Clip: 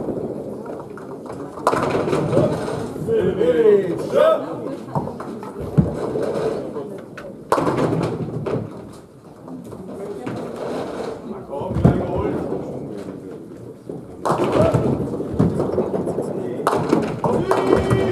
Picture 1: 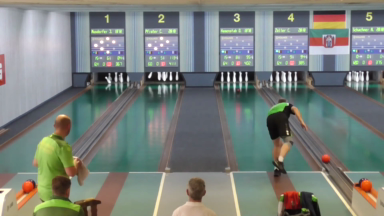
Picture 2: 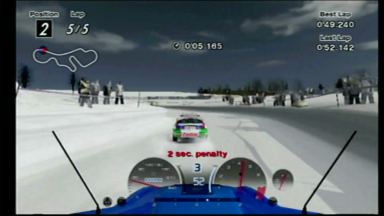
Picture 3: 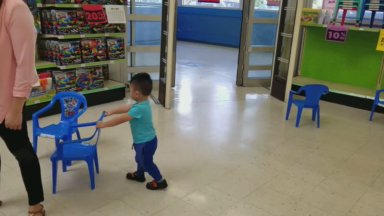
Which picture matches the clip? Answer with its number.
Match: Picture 1